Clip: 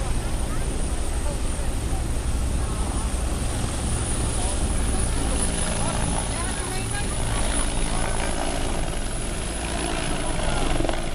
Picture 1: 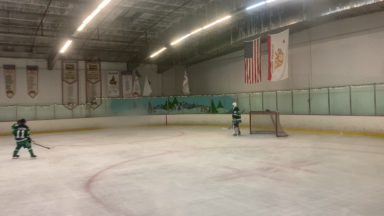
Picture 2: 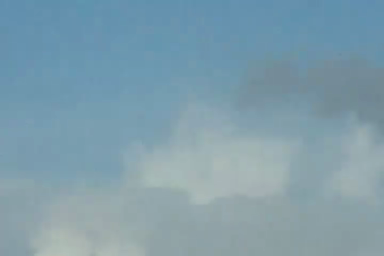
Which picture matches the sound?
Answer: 2